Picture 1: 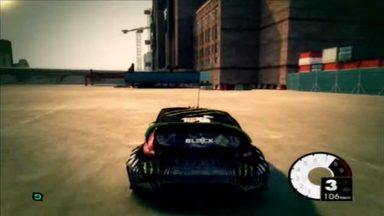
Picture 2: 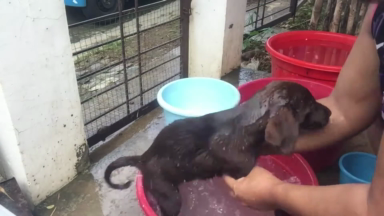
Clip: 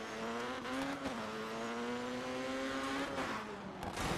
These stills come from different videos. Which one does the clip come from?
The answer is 1